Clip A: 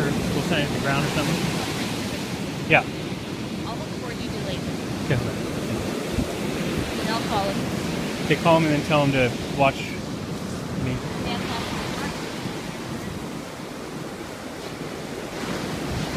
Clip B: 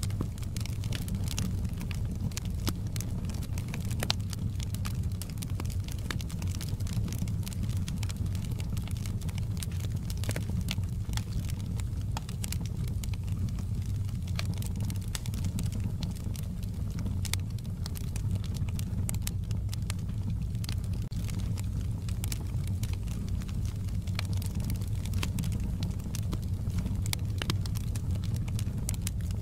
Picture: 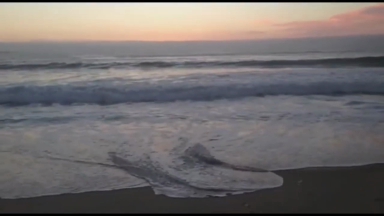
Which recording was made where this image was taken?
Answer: A